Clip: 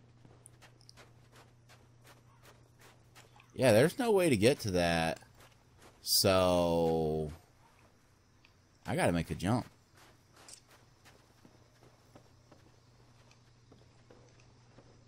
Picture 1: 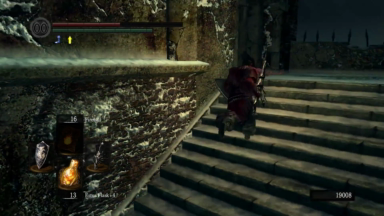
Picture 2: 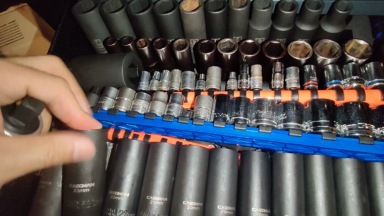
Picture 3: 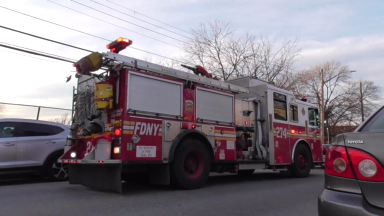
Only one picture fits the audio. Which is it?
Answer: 1